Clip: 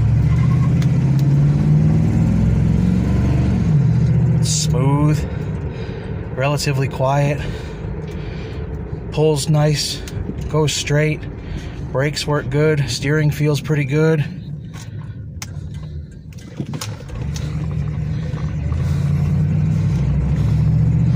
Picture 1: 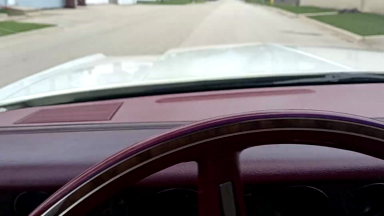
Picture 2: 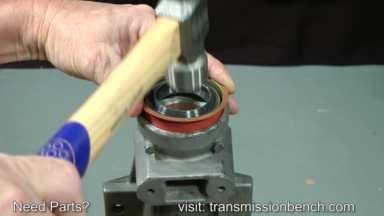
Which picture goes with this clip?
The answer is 1